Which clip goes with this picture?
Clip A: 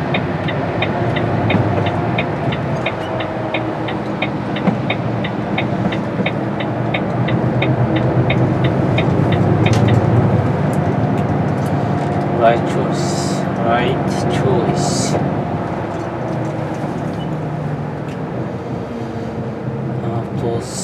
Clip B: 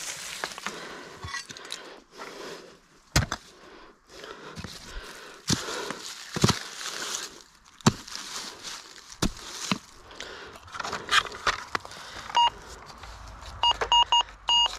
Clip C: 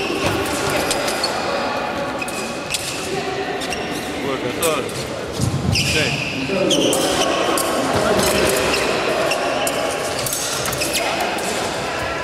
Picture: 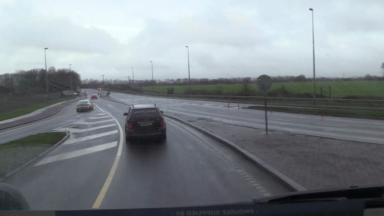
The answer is A